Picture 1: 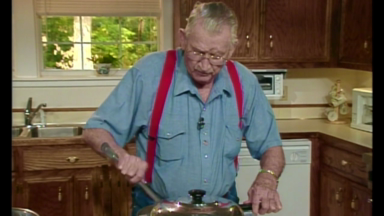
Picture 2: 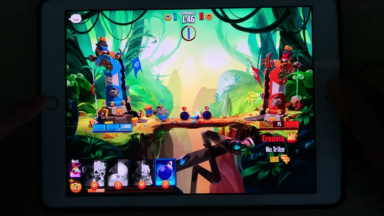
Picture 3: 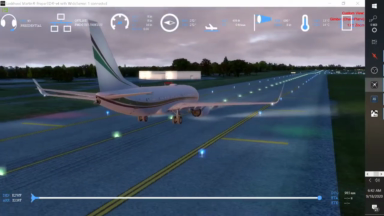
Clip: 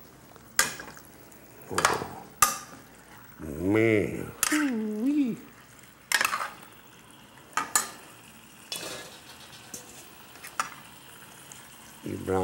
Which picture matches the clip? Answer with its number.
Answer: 1